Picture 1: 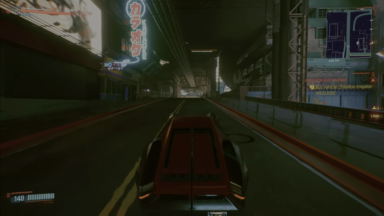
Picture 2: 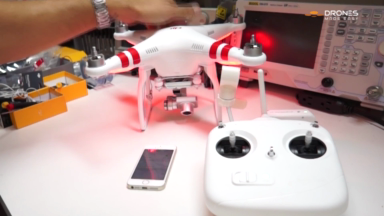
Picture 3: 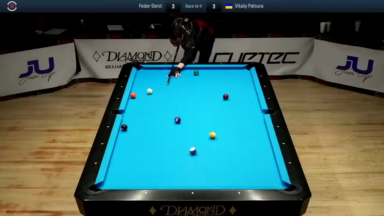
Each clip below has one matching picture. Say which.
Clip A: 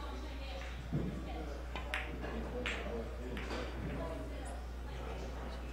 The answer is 3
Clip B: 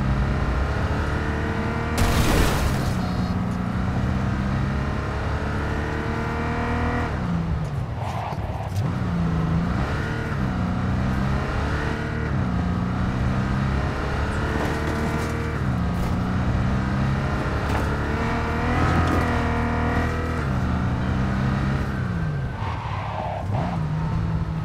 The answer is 1